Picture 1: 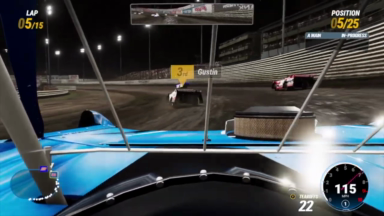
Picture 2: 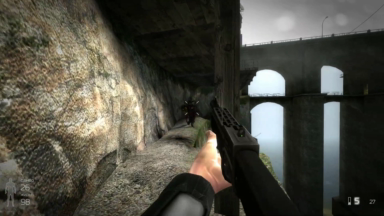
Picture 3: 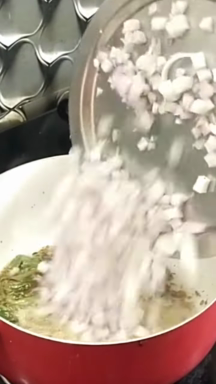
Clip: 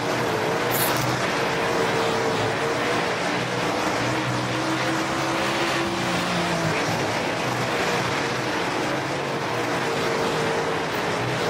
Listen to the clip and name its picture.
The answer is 1